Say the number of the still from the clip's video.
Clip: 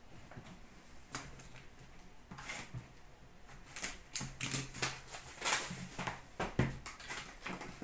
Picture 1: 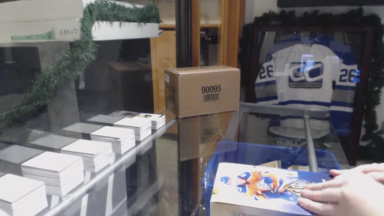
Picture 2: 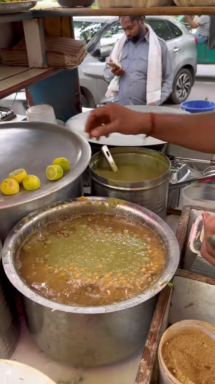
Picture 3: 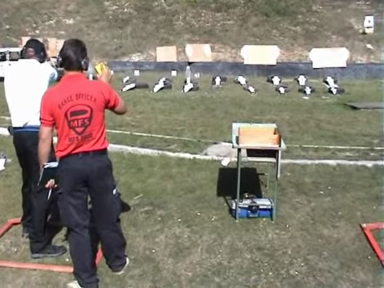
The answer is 1